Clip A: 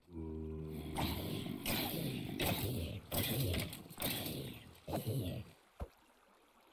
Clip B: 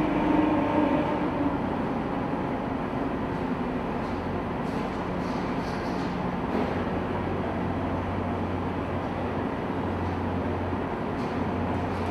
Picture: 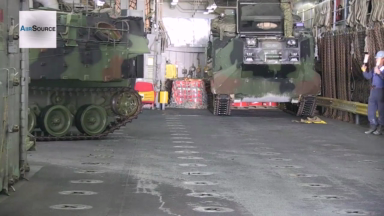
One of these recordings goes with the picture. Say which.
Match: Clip B